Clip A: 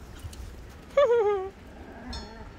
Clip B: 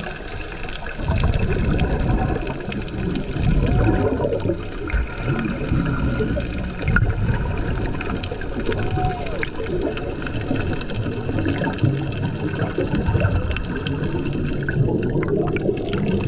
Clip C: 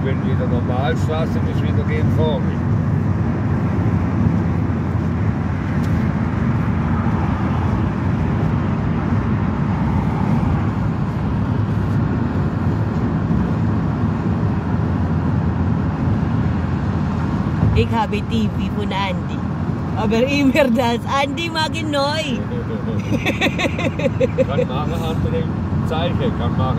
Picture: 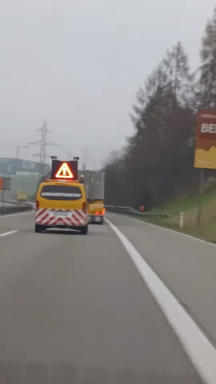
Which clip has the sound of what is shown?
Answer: C